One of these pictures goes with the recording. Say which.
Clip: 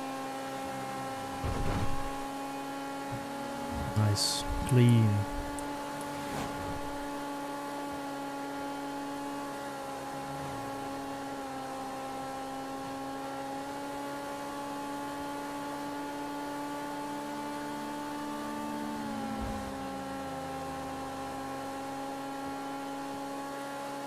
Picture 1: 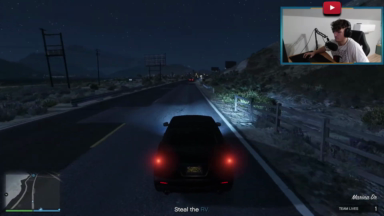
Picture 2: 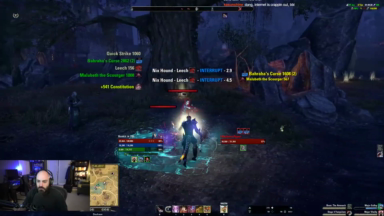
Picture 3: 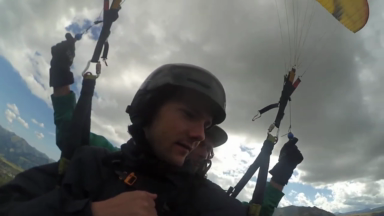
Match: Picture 1